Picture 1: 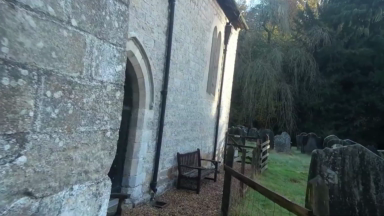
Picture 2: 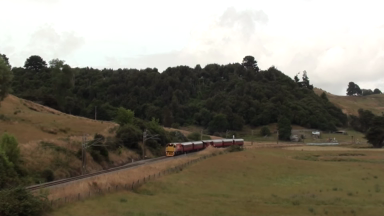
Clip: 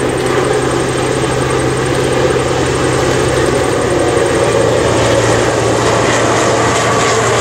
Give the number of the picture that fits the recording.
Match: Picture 2